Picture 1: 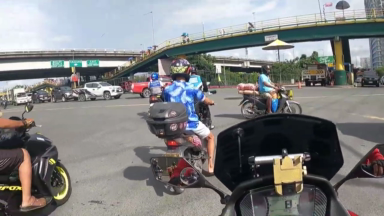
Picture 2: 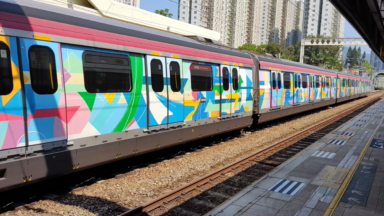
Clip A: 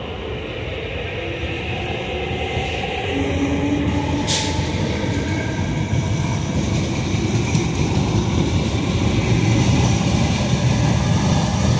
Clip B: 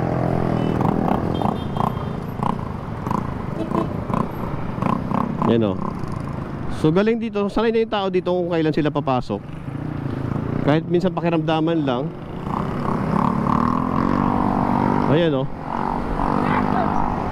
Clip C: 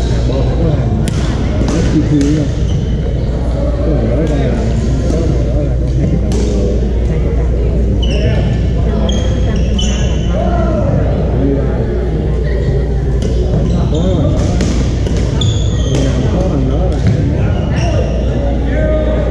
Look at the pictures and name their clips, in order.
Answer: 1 B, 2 A